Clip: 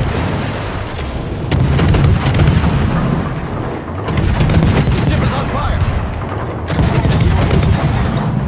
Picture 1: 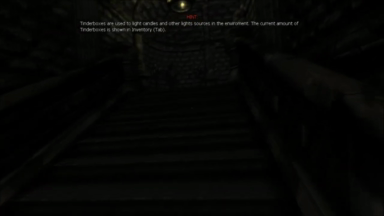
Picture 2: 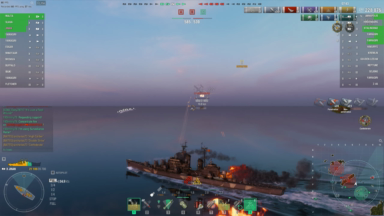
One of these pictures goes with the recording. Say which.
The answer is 2